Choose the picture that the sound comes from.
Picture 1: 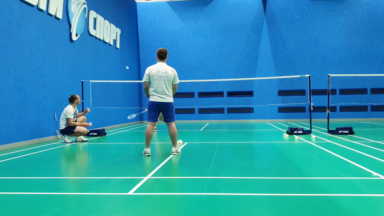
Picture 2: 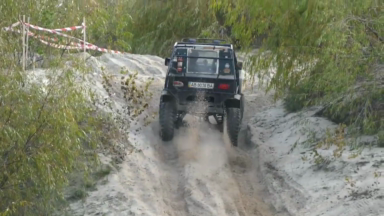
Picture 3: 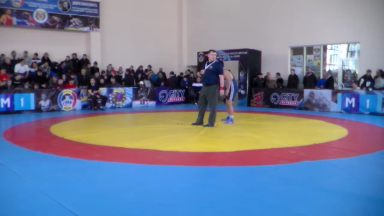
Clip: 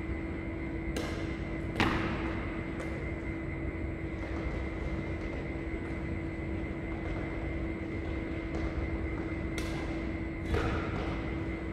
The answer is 1